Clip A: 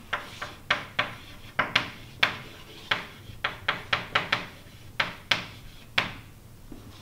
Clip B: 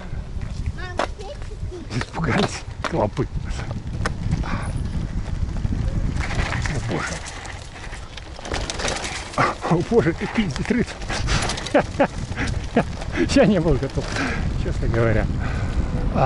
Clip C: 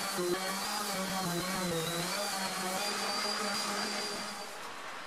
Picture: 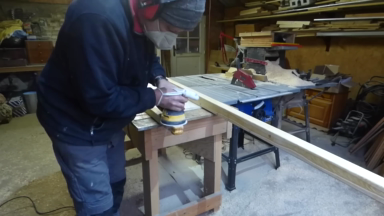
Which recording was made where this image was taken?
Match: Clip C